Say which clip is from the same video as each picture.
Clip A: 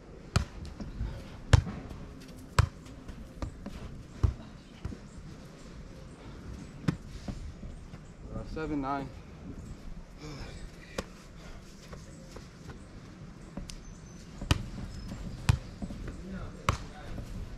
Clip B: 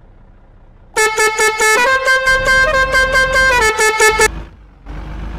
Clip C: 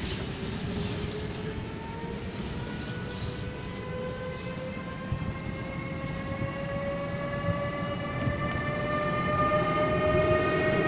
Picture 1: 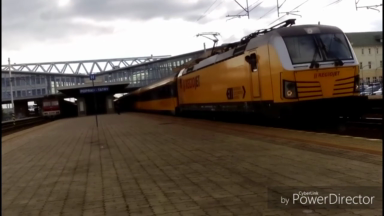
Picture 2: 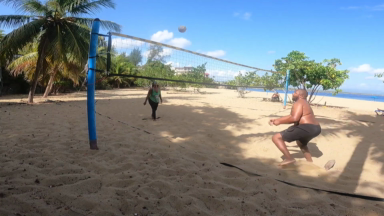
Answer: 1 C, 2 A